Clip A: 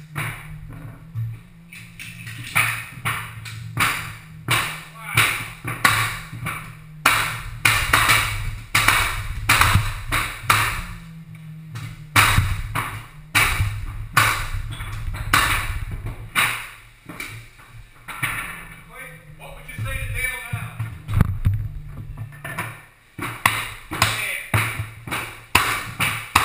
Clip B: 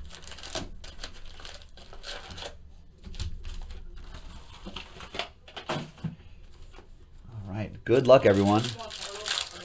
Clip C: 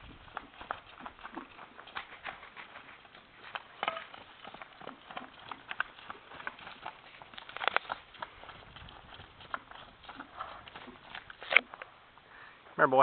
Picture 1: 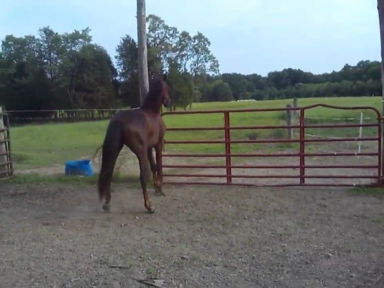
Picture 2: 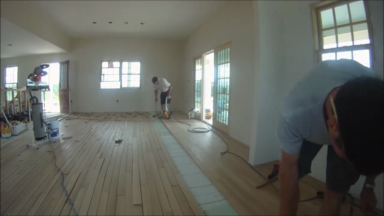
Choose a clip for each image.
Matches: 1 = C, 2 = A